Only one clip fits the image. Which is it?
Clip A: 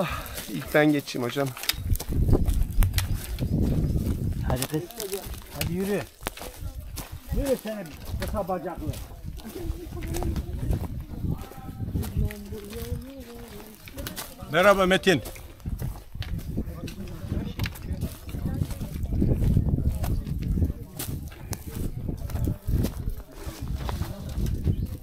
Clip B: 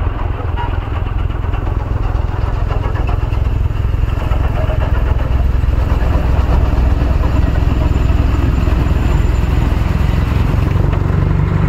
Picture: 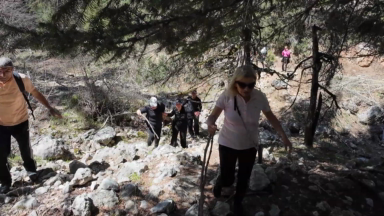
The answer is A